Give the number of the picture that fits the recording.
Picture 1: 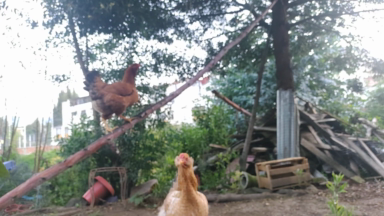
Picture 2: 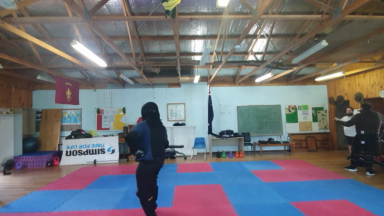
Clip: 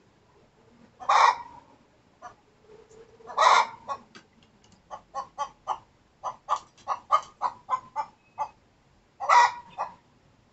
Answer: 1